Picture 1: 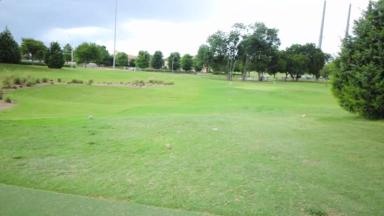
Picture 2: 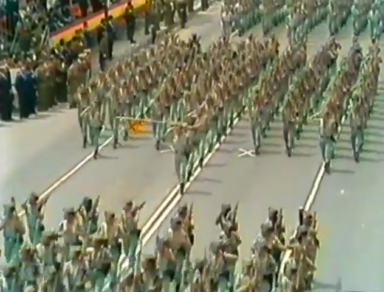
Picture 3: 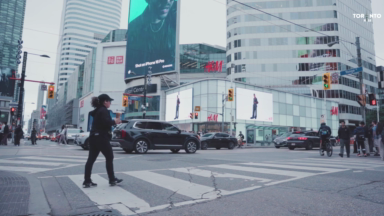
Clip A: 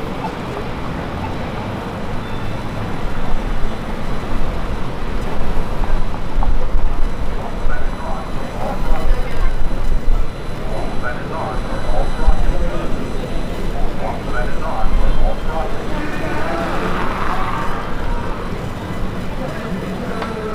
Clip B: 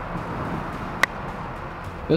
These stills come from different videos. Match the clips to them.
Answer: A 3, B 1